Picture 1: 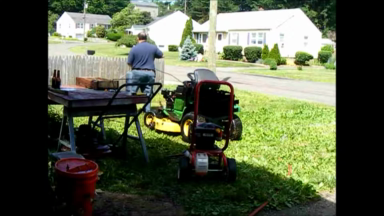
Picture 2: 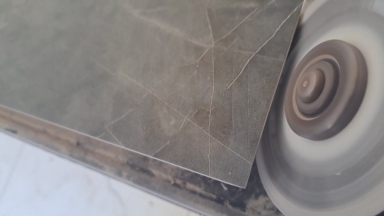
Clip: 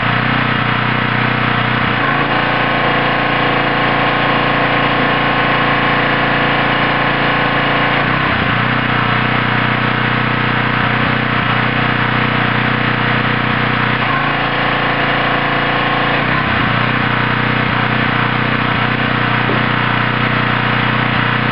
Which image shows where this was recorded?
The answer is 1